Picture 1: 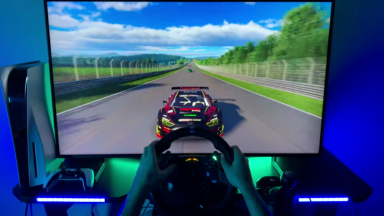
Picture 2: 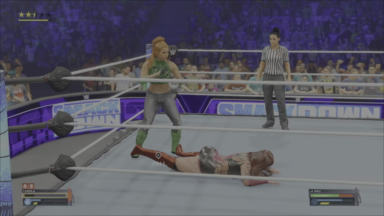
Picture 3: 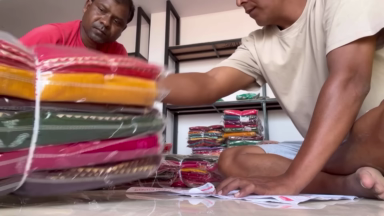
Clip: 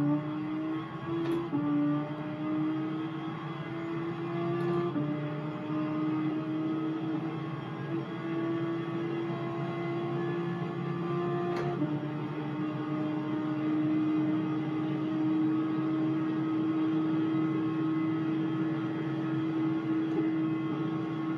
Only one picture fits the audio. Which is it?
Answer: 1